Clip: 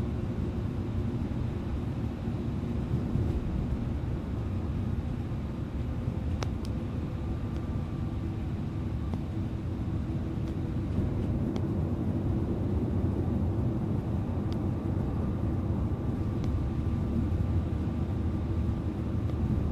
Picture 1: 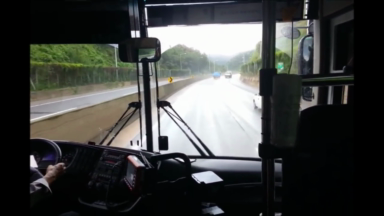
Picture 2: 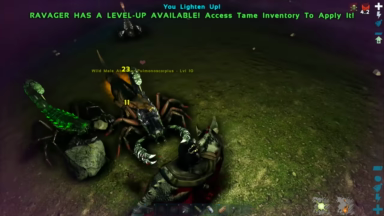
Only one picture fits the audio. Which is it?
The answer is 1